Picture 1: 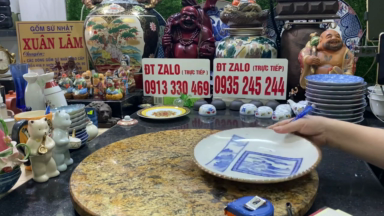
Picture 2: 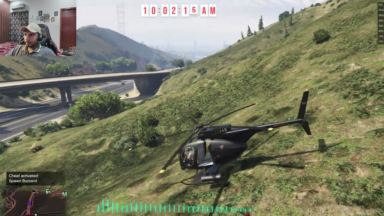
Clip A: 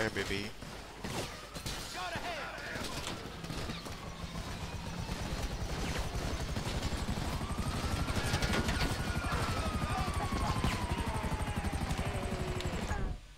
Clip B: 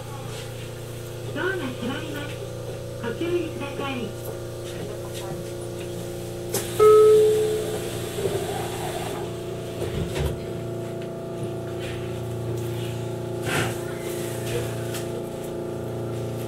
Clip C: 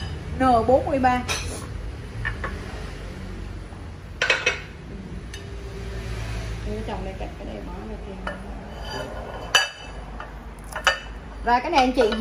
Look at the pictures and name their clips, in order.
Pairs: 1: C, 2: A